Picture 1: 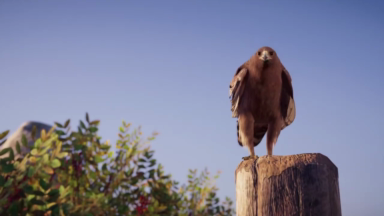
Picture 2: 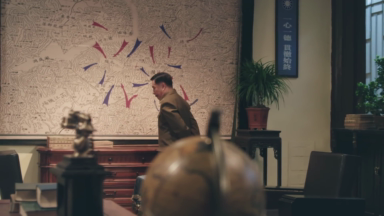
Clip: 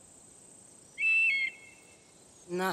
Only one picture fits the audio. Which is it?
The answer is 1